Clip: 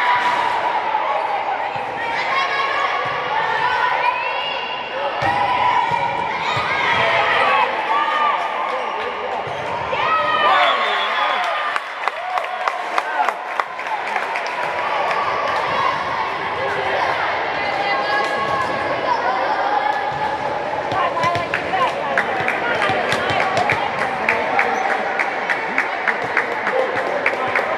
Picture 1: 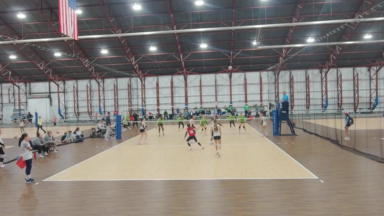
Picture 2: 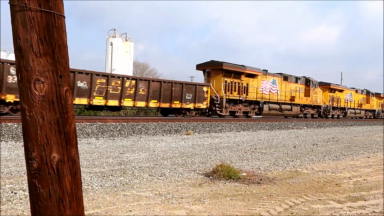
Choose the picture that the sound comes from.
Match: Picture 1